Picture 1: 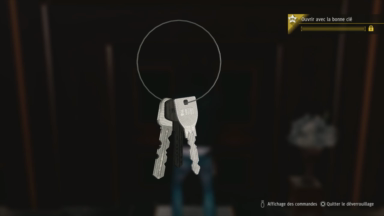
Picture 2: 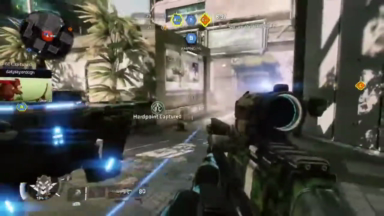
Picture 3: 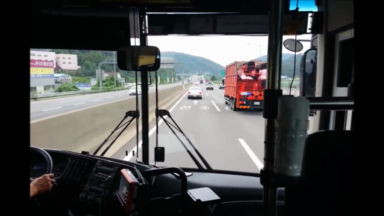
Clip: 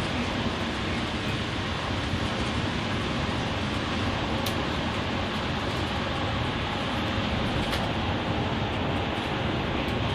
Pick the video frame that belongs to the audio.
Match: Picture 3